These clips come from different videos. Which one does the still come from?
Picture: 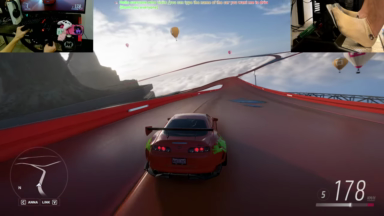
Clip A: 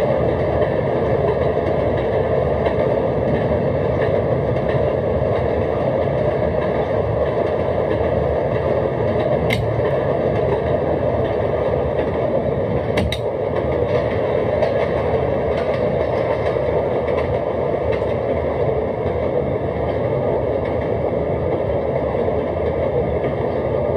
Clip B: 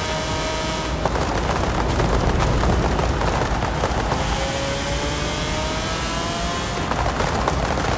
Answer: B